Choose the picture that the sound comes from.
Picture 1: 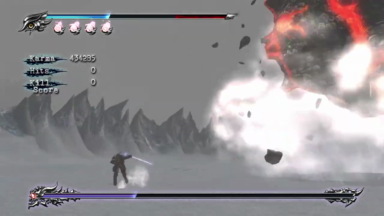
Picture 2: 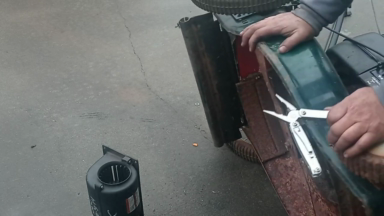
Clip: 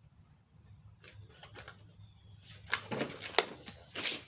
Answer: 2